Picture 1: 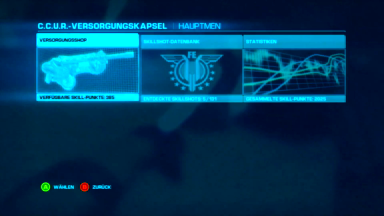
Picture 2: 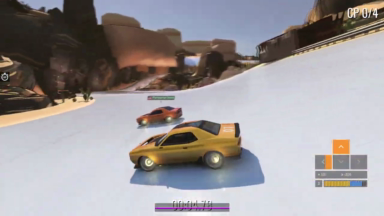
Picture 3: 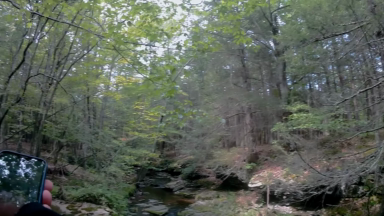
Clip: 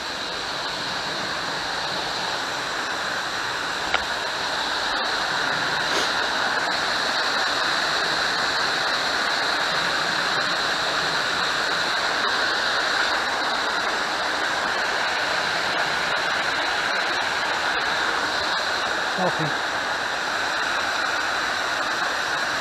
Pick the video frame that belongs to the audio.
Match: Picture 3